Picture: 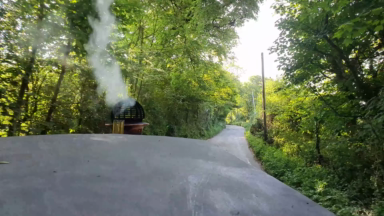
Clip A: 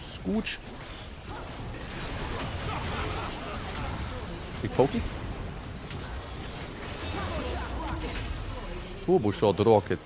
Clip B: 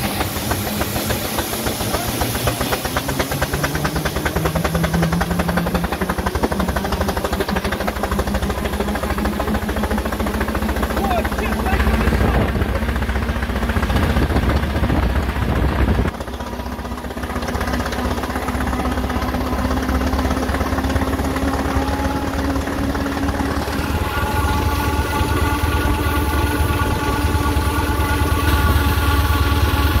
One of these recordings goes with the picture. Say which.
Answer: B